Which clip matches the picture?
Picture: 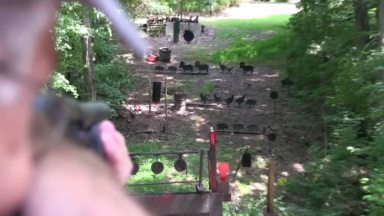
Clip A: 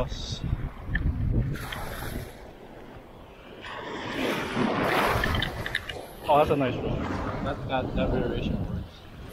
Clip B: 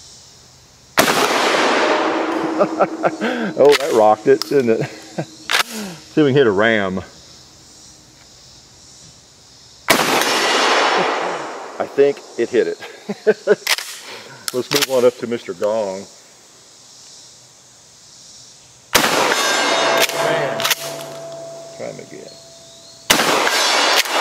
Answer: B